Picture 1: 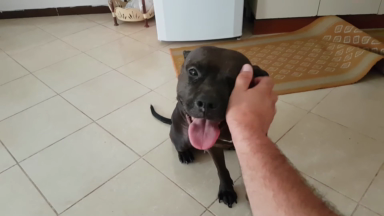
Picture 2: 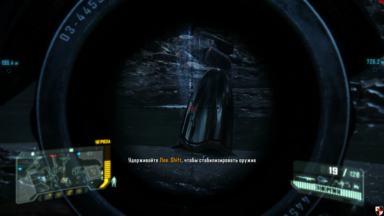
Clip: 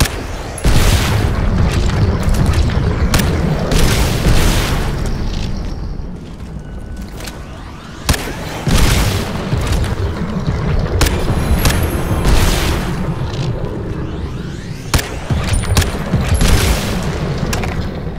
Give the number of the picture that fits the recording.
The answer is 2